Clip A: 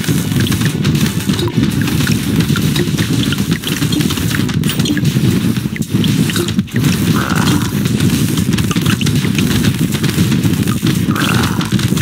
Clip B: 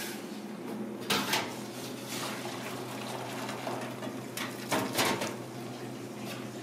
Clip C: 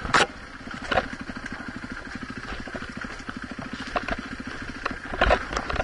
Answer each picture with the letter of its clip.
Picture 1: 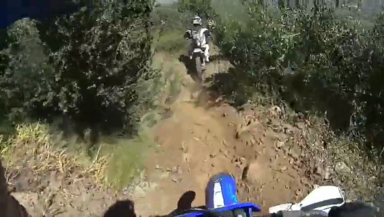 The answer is C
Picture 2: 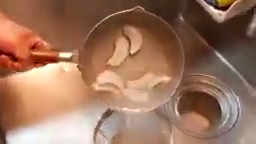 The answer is B